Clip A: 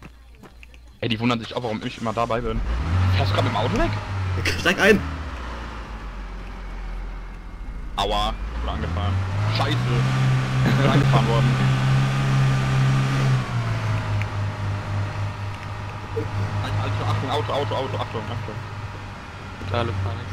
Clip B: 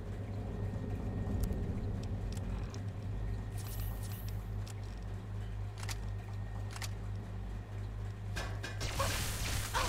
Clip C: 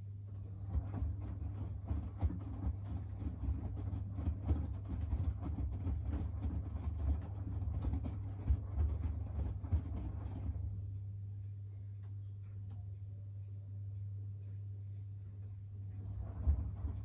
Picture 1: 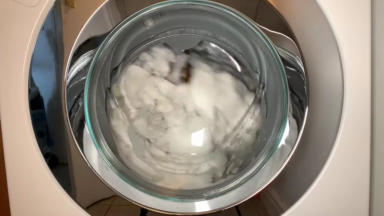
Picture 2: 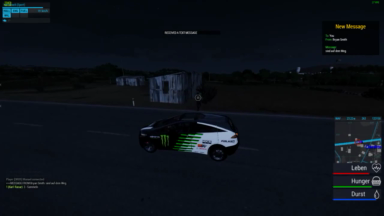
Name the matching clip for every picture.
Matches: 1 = C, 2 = A